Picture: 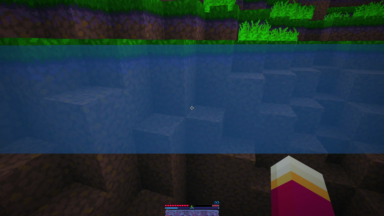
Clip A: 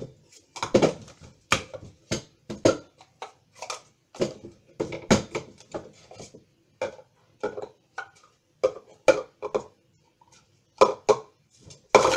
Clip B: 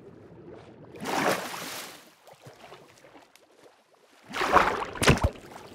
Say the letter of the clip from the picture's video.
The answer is B